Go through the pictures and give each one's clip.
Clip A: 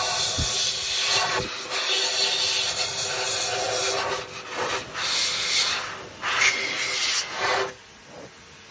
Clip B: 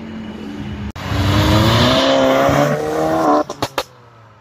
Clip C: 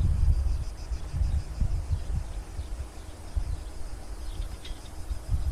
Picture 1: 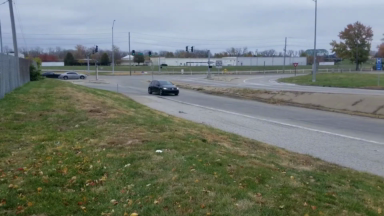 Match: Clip B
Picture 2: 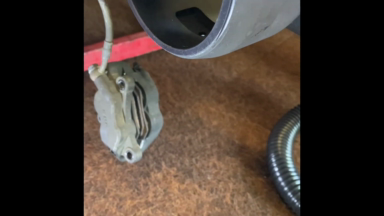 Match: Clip A